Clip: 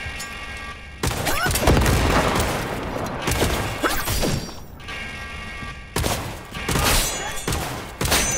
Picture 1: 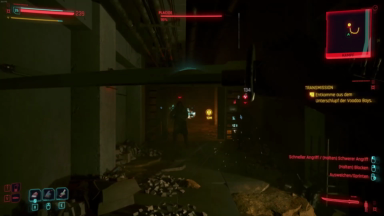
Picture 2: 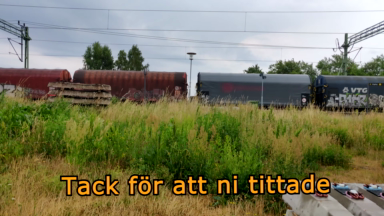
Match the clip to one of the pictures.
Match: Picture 1